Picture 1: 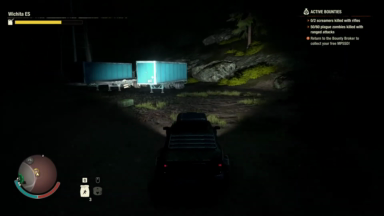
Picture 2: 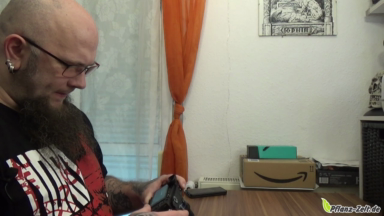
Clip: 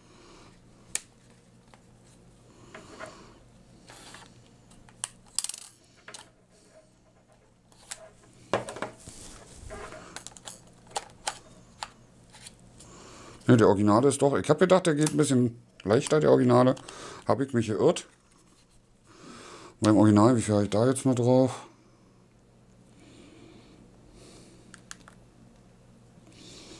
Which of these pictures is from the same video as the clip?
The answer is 2